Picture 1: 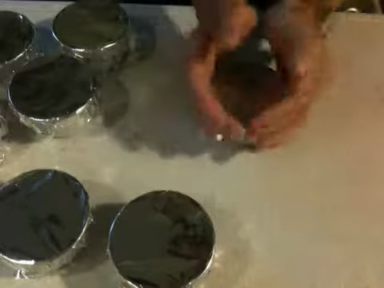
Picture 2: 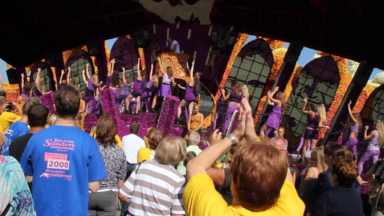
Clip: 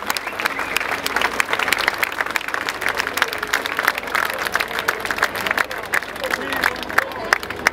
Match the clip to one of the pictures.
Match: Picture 2